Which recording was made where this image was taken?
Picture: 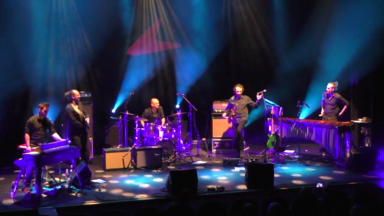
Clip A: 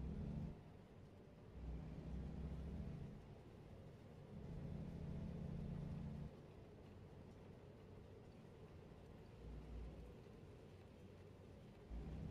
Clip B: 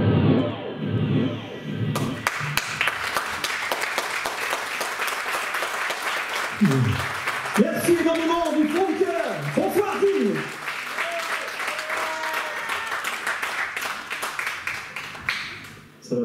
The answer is B